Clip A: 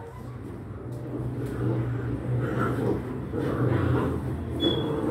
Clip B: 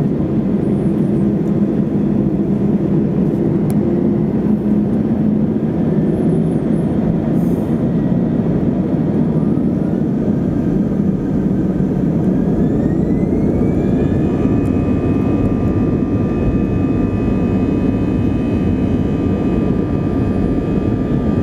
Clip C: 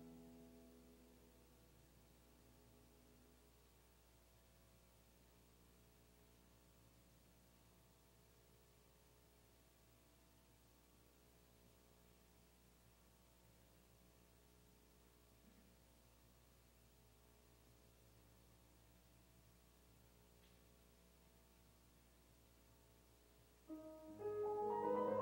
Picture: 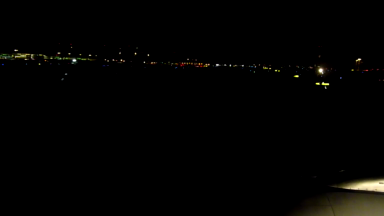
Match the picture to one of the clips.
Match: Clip B